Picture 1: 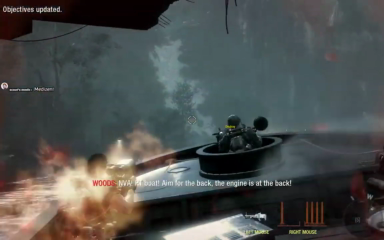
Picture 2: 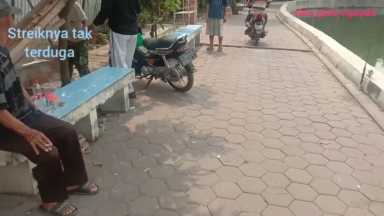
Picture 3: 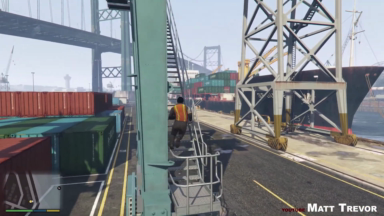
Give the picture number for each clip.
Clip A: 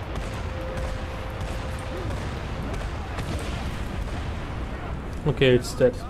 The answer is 1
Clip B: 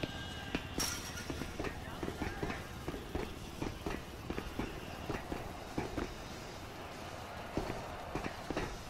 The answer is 3